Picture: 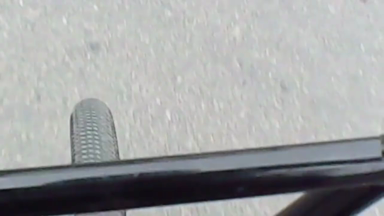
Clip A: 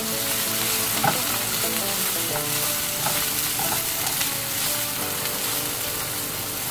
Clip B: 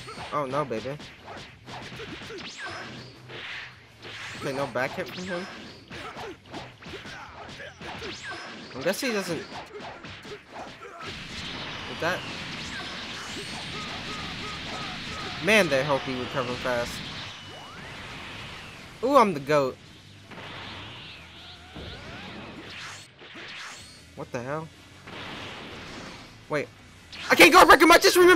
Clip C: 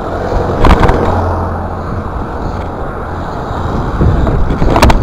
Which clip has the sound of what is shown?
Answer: C